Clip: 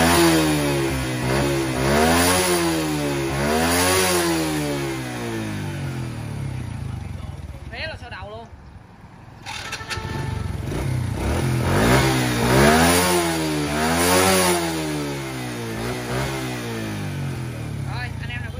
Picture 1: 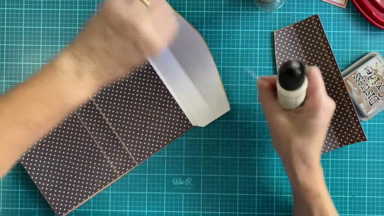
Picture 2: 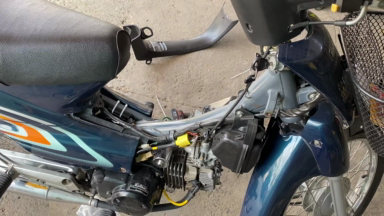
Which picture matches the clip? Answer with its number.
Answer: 2